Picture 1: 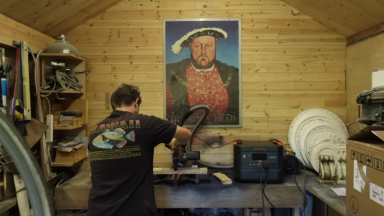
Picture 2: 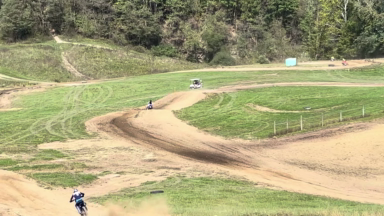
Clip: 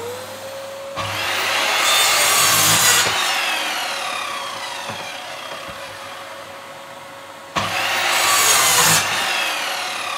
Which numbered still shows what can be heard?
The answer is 1